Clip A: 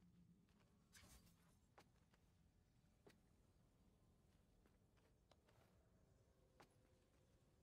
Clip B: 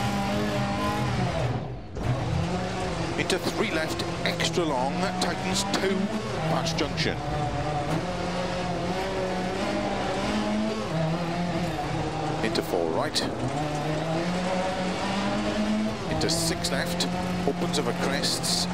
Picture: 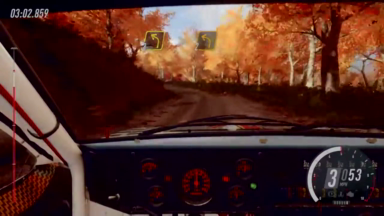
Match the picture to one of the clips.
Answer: B